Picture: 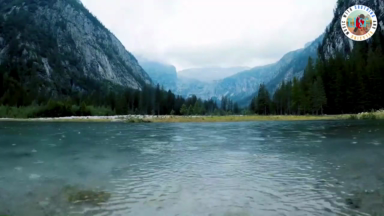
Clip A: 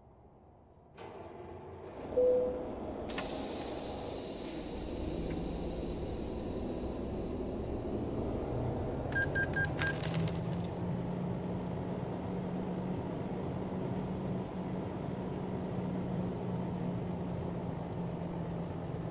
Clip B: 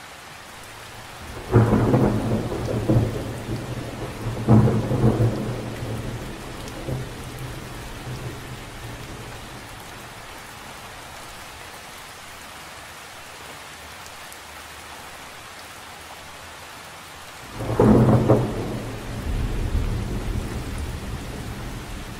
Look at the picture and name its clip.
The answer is B